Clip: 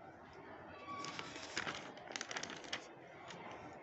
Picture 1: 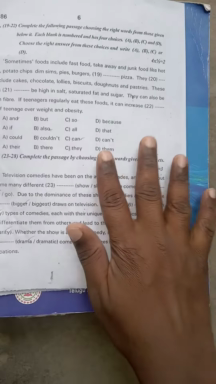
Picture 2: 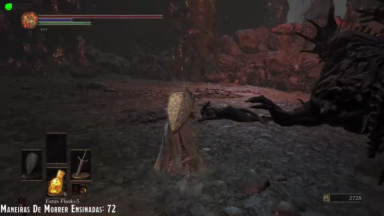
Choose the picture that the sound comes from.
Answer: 1